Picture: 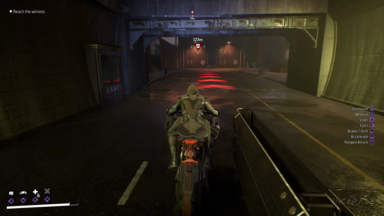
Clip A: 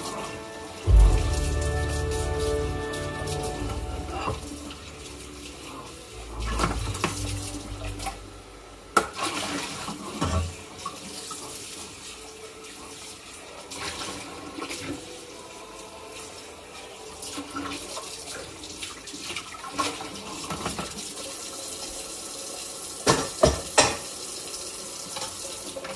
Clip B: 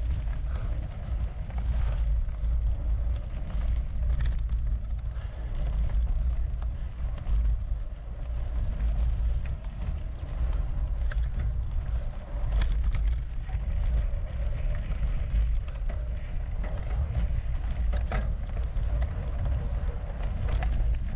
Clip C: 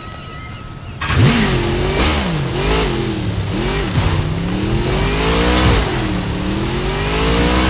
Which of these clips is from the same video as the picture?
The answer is C